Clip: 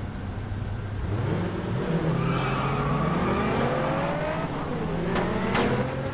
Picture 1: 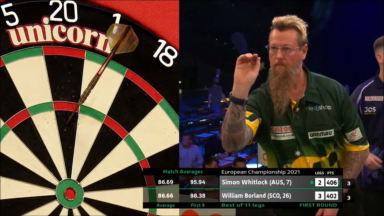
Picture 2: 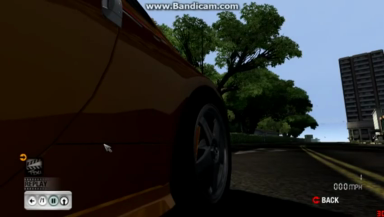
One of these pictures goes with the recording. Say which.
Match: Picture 2